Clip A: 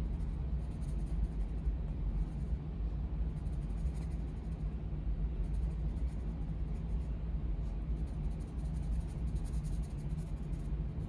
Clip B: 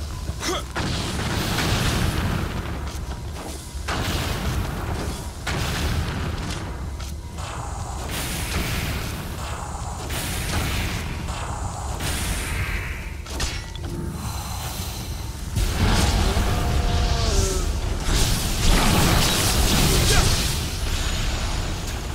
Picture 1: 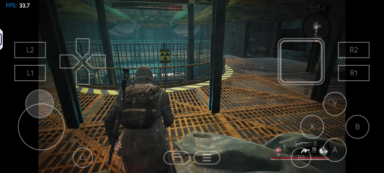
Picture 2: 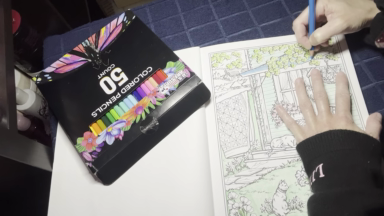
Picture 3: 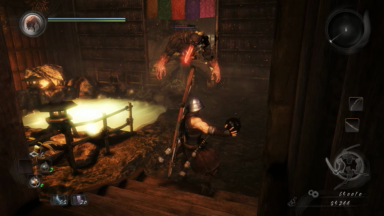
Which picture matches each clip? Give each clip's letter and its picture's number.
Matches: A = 2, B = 3